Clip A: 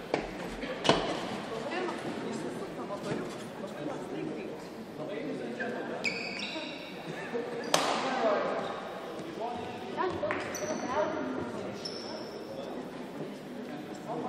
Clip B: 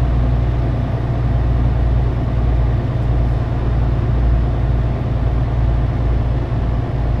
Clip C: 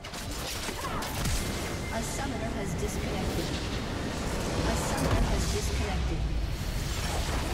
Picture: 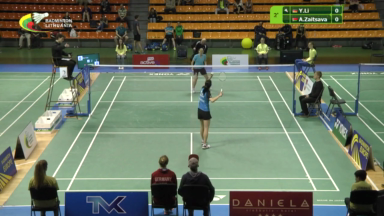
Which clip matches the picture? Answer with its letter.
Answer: A